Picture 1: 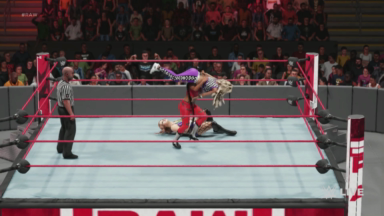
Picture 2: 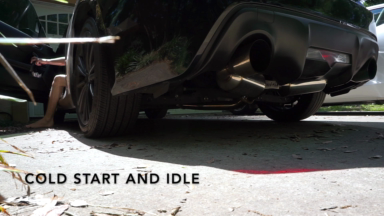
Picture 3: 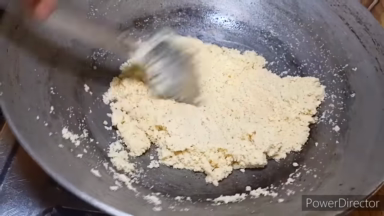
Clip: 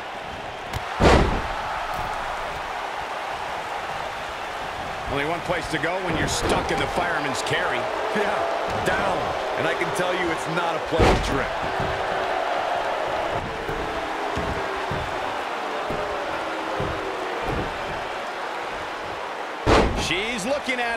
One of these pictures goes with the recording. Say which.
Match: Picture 1